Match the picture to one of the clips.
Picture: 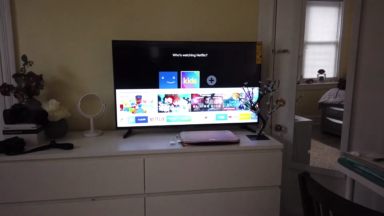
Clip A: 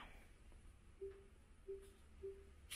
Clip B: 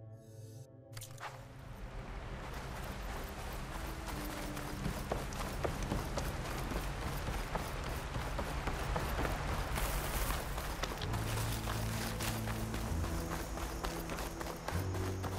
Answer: A